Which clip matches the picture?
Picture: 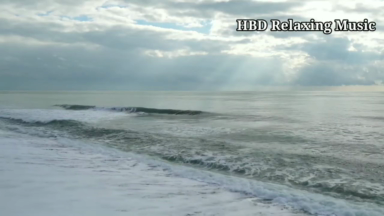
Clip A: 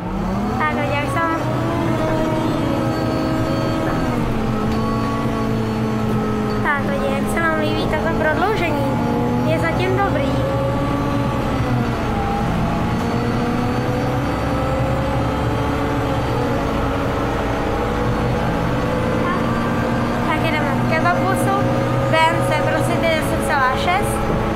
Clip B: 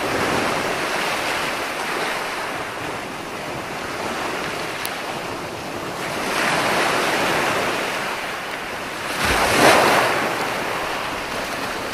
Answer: B